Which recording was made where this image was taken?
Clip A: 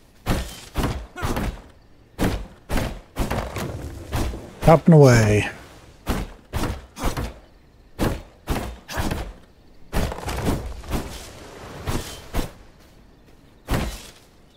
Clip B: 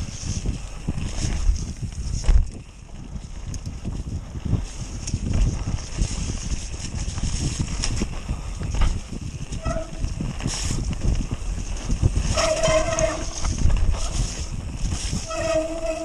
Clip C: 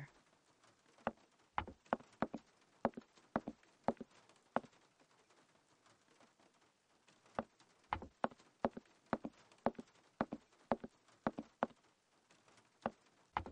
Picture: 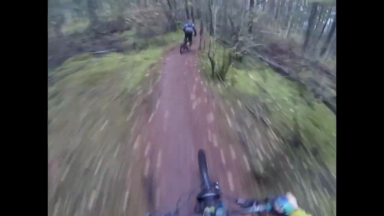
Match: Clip B